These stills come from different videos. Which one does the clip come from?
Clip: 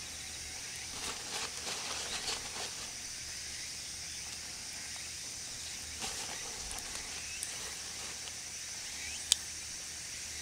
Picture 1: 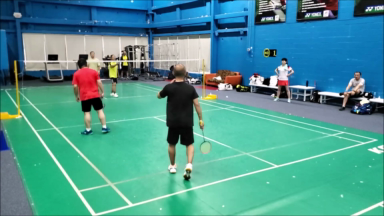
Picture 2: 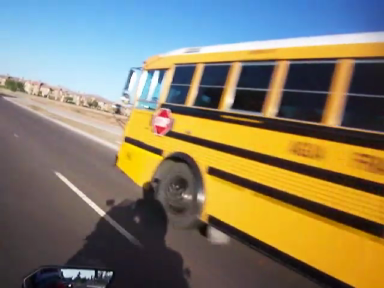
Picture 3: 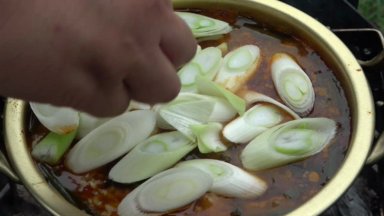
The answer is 3